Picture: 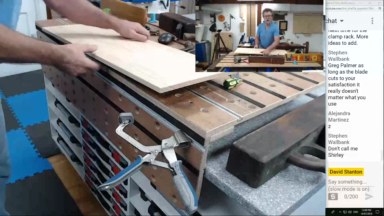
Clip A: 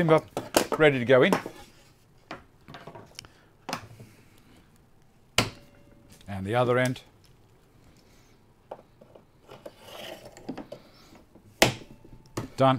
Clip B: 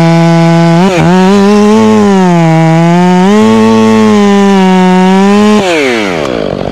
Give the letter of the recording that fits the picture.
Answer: A